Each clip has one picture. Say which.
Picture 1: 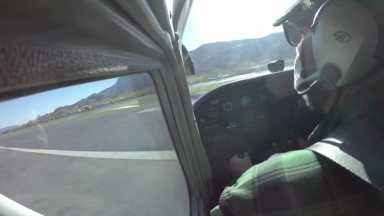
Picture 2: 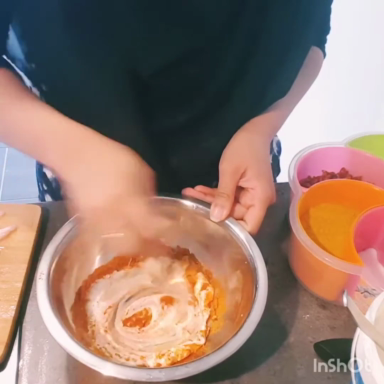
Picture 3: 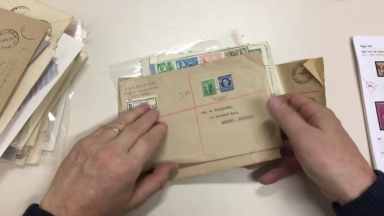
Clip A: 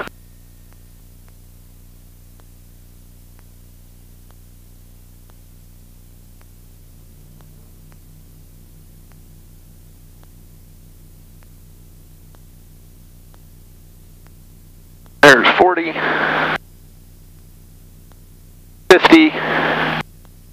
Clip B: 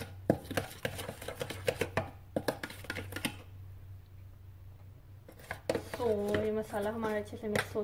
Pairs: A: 1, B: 2